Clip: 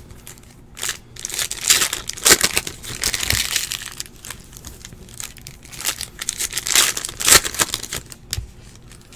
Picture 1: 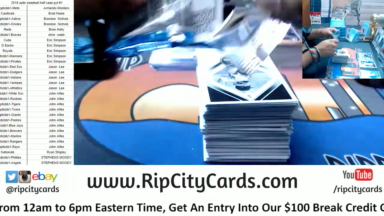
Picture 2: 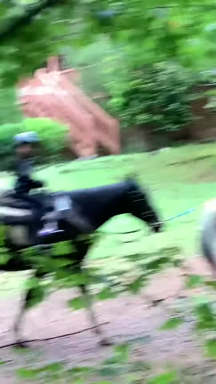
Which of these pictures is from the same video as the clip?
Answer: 1